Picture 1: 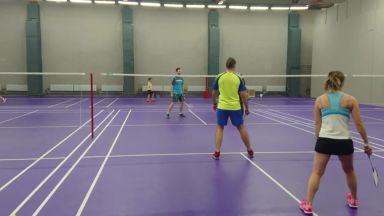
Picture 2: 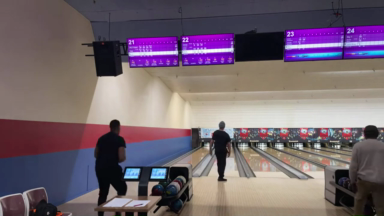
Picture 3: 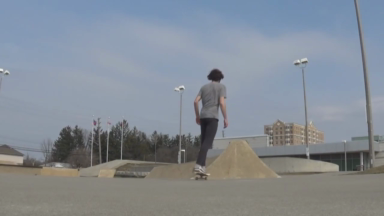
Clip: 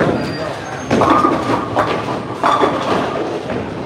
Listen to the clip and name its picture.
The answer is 2